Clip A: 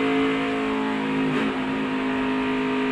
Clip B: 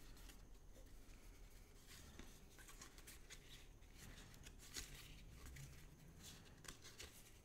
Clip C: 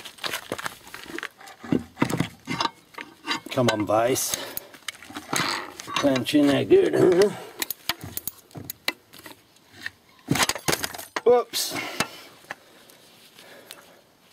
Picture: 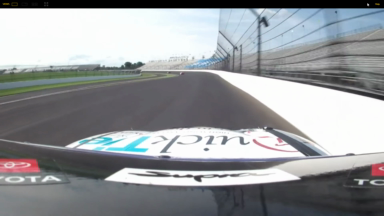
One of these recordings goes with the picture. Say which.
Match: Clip A